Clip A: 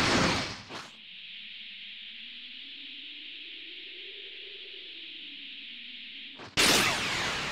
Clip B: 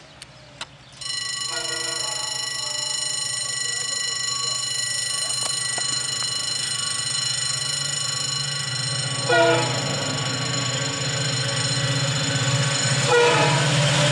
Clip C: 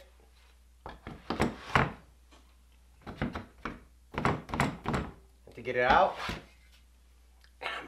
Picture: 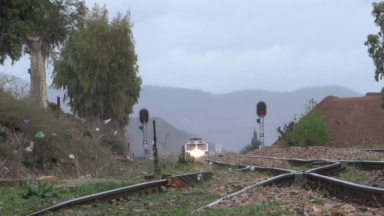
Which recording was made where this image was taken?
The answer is B